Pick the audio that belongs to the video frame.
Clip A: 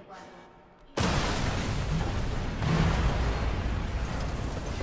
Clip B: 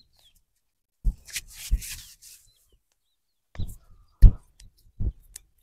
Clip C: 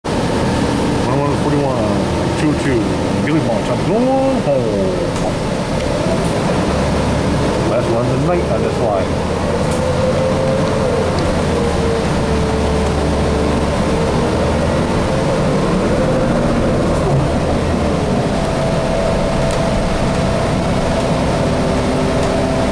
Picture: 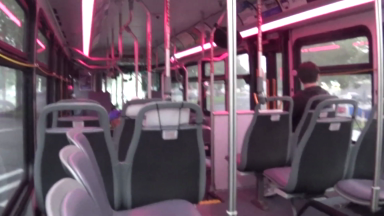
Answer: C